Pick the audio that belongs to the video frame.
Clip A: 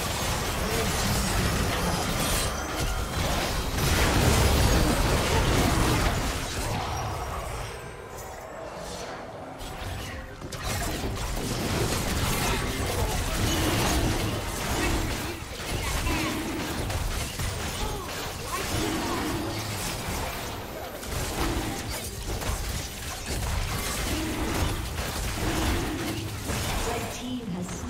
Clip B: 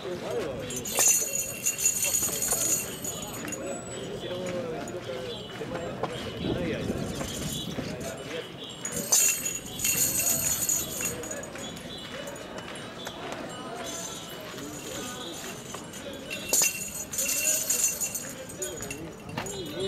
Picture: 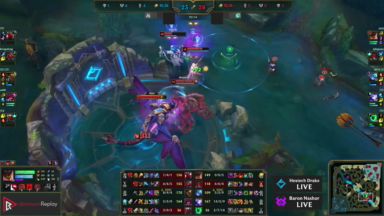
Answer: A